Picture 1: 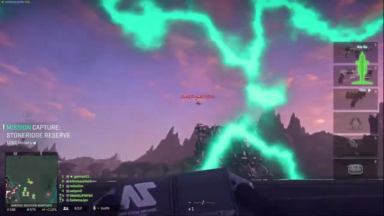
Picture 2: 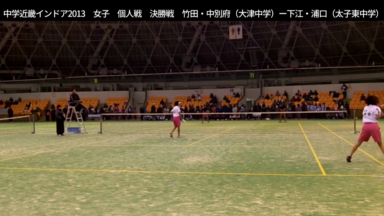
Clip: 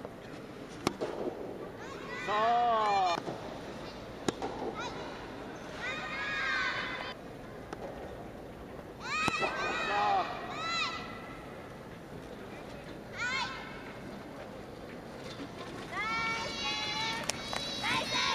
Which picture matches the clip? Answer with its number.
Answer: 2